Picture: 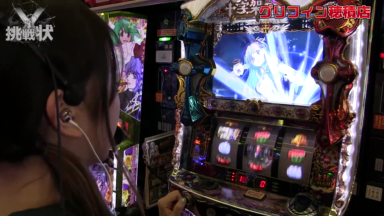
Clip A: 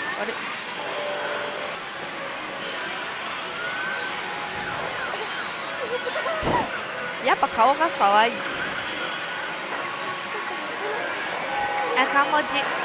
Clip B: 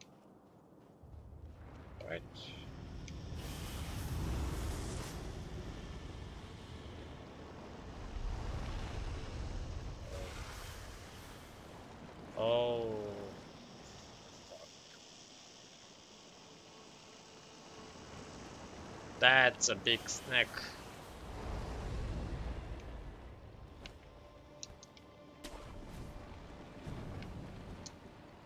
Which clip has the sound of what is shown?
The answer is A